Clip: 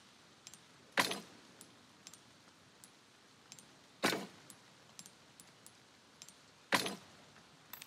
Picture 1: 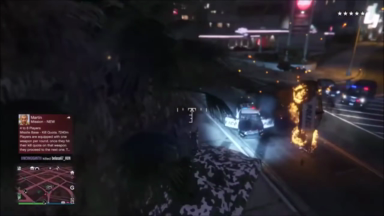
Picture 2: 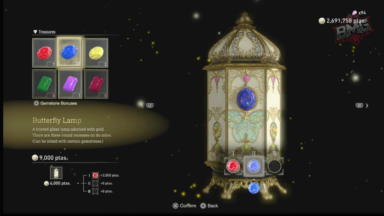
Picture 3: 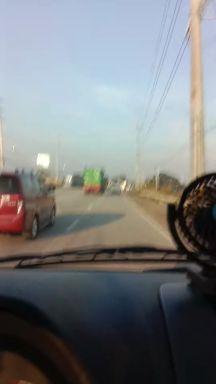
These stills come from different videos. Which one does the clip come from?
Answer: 2